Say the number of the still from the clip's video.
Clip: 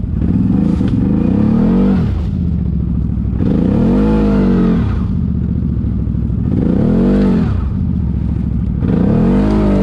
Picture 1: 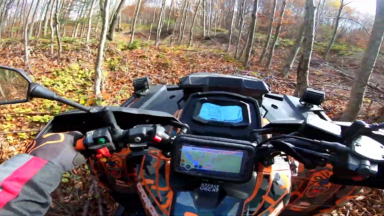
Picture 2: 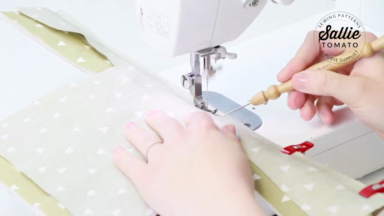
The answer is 1